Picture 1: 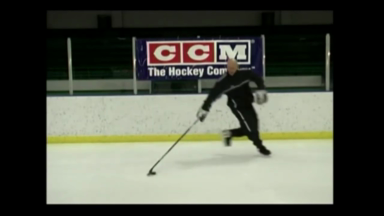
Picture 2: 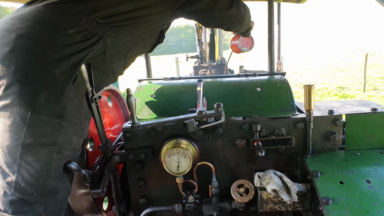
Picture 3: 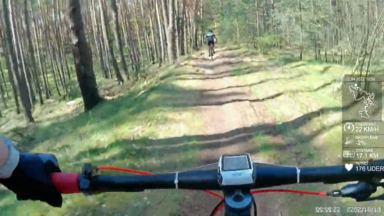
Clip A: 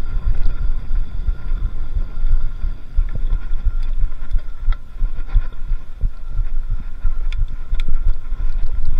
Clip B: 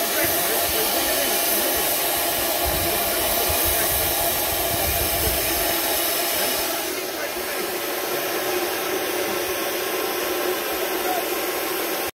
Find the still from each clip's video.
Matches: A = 3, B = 2